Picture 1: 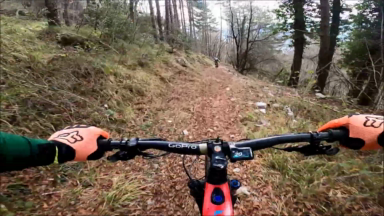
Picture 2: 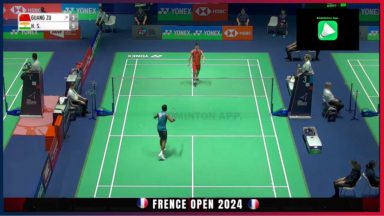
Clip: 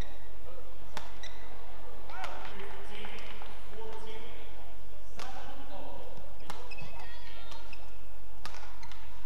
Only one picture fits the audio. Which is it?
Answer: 2